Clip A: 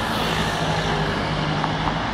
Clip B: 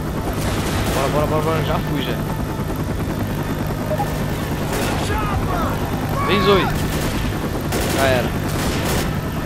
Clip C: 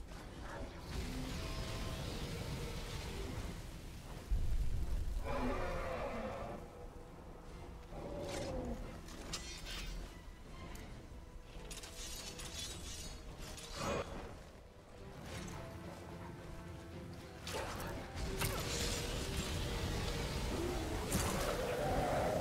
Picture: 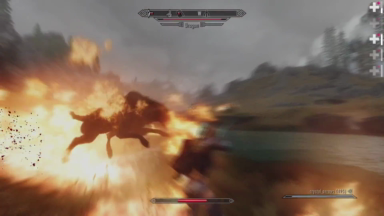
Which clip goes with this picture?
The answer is C